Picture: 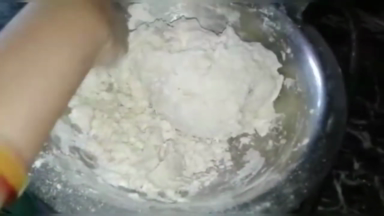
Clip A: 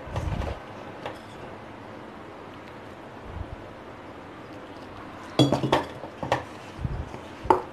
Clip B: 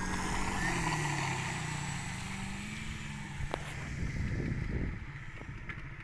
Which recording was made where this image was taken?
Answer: A